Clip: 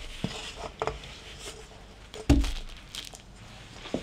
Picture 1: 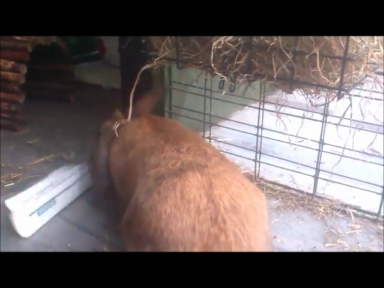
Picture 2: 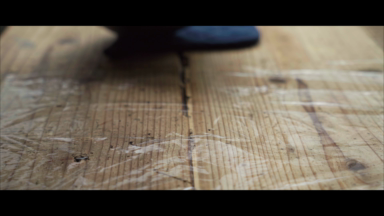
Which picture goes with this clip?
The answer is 2